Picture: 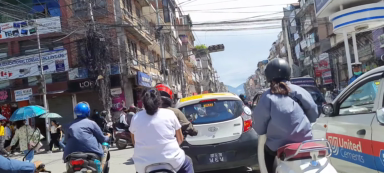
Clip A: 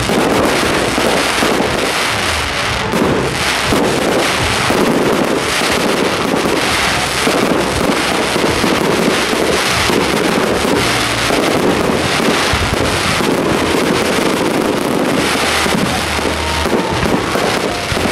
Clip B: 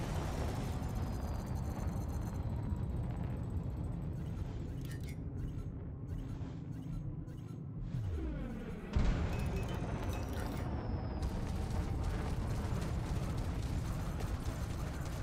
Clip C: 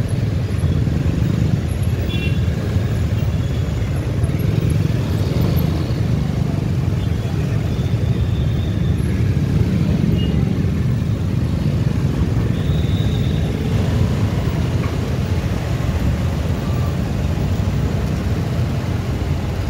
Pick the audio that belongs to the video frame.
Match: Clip C